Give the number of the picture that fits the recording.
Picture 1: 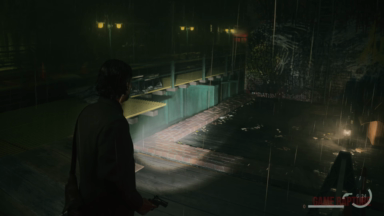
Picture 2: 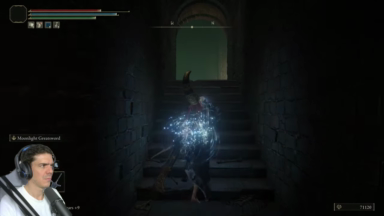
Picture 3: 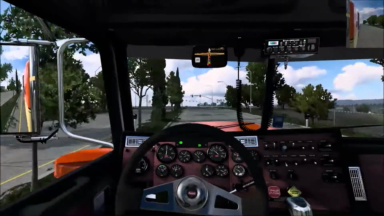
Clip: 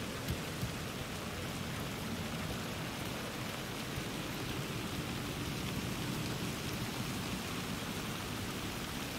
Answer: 1